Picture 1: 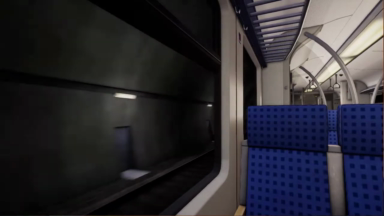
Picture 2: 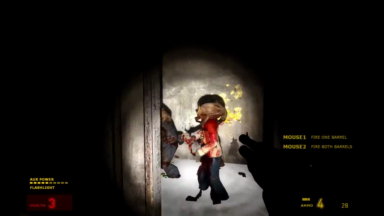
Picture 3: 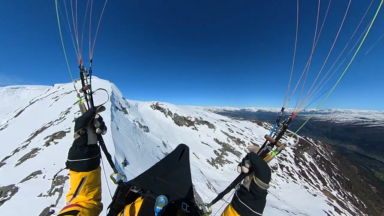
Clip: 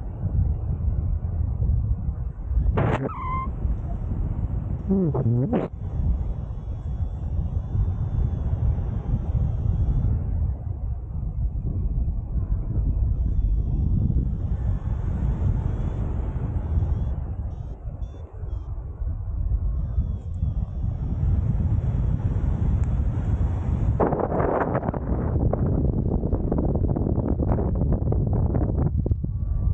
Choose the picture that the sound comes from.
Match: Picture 3